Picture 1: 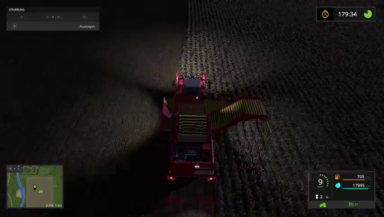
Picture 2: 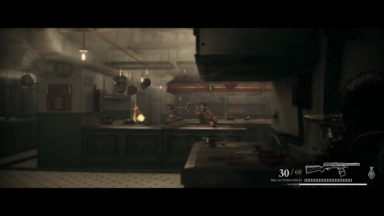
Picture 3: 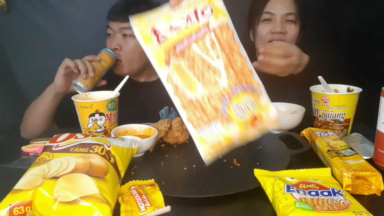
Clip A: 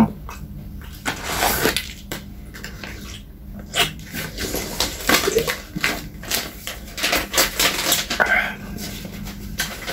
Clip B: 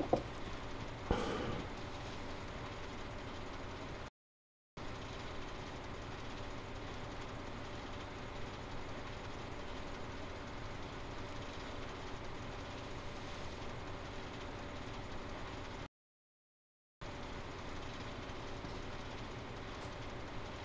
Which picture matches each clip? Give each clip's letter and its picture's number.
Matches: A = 3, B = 1